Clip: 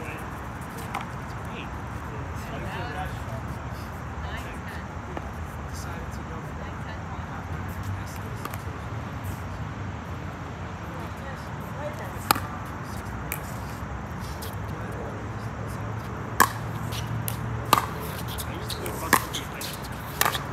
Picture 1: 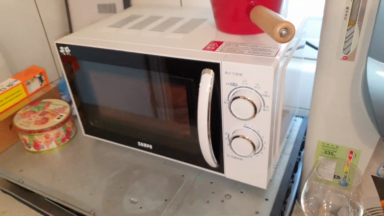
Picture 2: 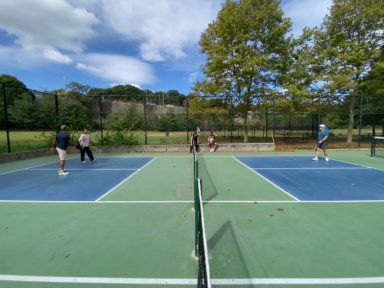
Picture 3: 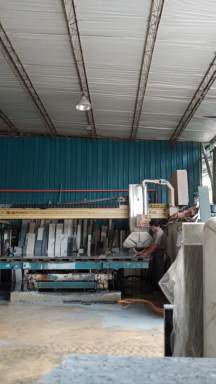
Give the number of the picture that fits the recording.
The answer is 2